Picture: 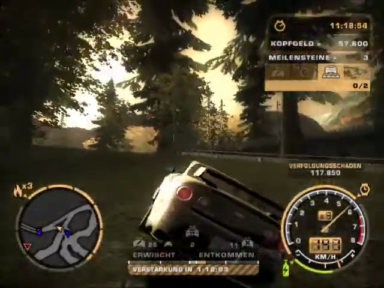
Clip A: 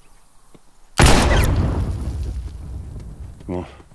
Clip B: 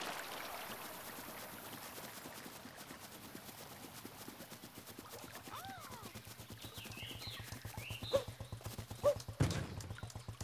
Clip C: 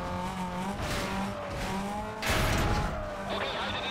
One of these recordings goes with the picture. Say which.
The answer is C